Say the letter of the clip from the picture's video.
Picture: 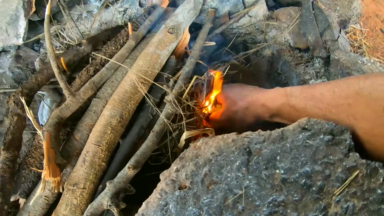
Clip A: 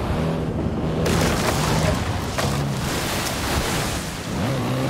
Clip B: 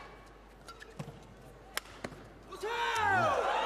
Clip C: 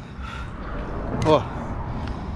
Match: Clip C